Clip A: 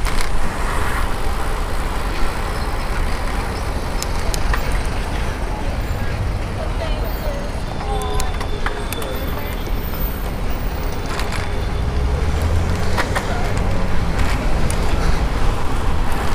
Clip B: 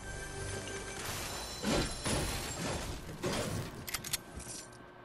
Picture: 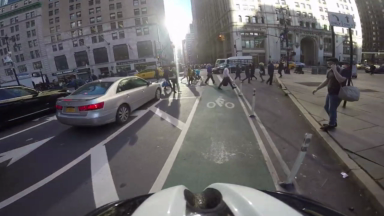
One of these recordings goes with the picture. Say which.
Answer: A